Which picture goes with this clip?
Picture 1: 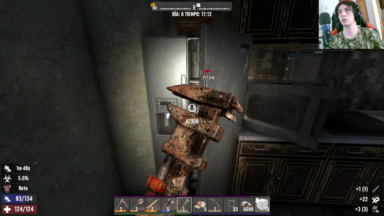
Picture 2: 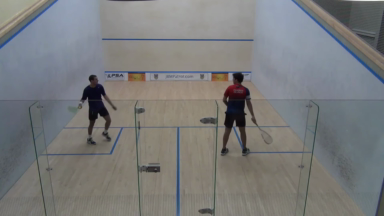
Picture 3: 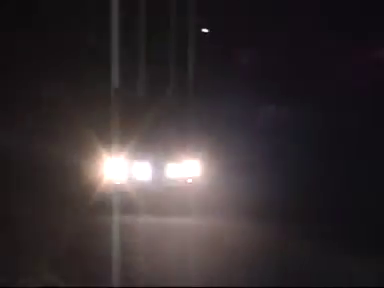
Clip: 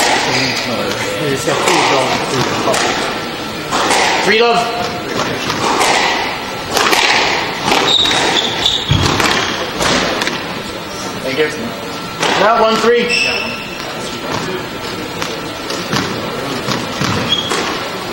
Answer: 2